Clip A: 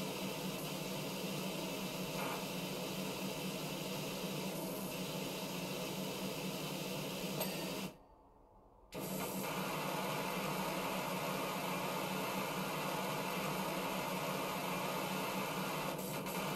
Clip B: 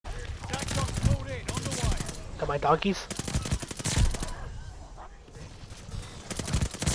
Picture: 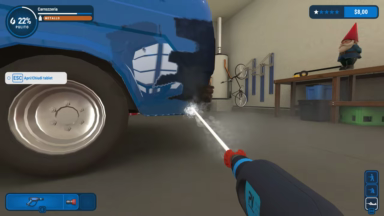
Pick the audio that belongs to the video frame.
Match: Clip A